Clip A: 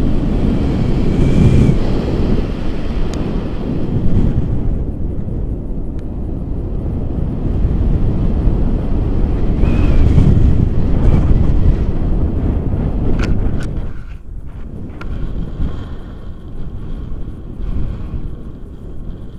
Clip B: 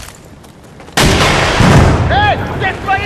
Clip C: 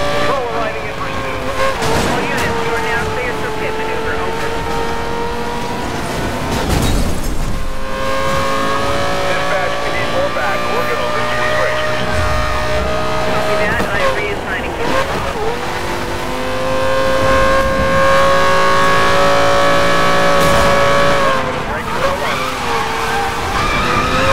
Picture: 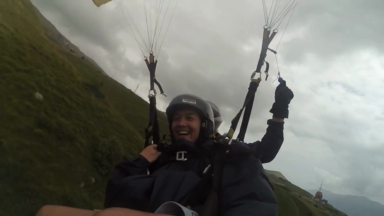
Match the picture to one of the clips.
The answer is A